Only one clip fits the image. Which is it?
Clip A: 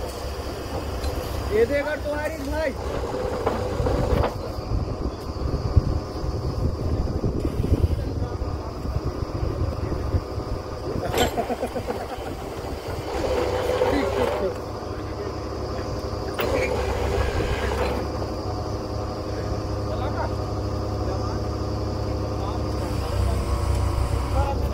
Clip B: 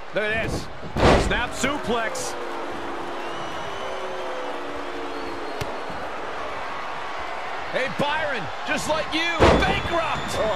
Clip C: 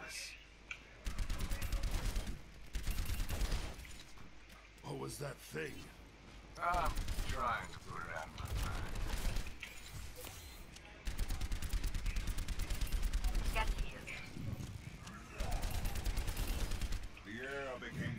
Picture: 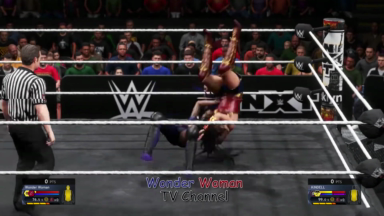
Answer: B